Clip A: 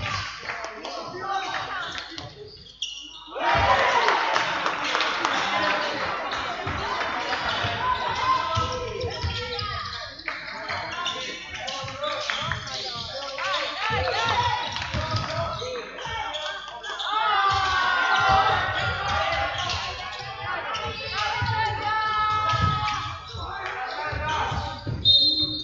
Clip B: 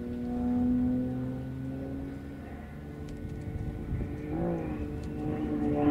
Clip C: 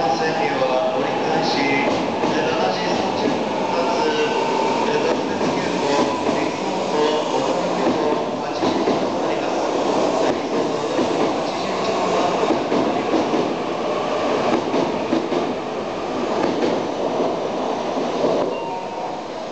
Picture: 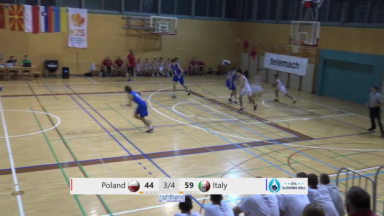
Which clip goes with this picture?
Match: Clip A